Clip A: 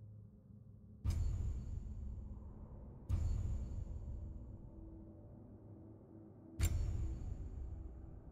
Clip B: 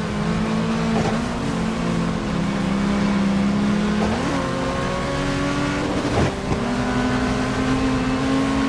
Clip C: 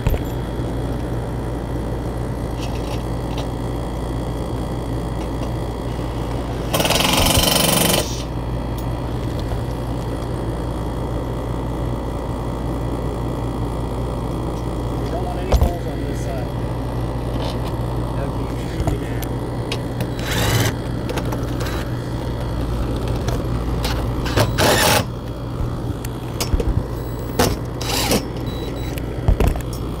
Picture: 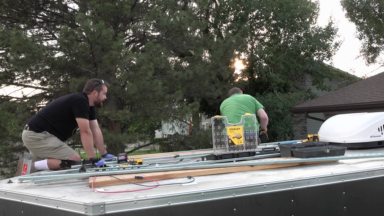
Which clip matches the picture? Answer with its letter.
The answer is C